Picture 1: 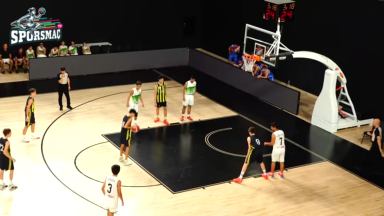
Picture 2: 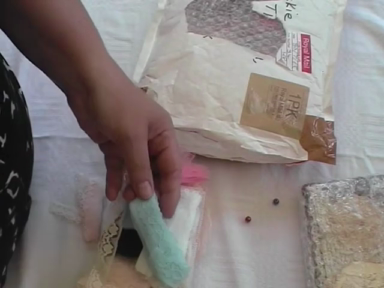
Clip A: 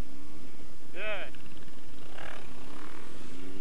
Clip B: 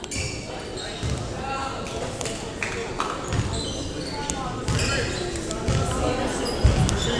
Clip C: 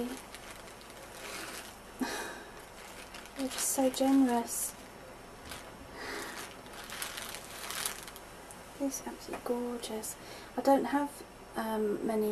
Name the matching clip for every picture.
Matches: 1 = B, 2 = C